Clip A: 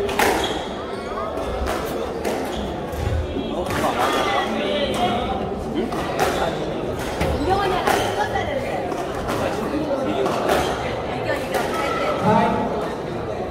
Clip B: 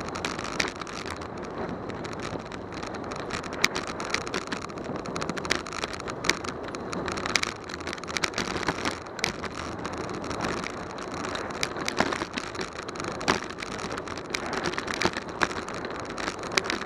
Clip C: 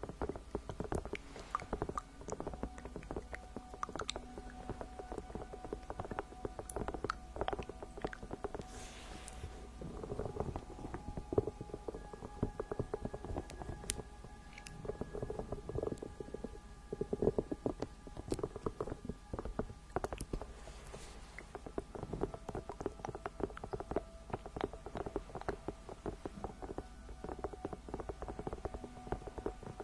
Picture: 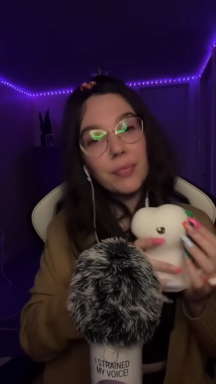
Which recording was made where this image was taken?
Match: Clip C